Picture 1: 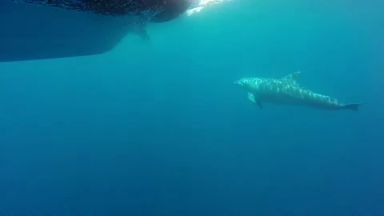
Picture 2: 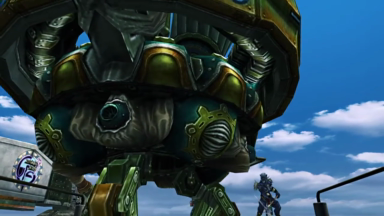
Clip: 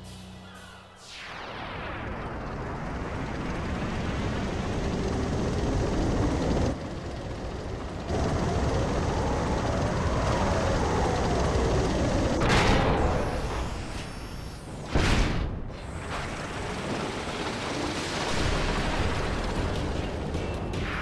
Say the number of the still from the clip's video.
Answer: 2